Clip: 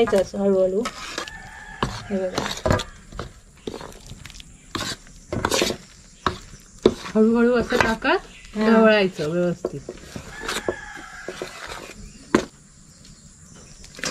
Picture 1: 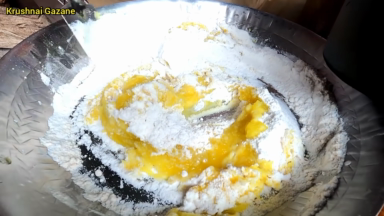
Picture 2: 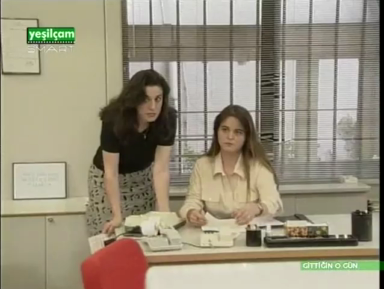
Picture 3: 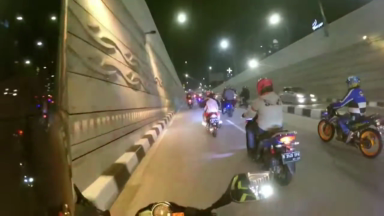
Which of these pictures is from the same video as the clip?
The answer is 1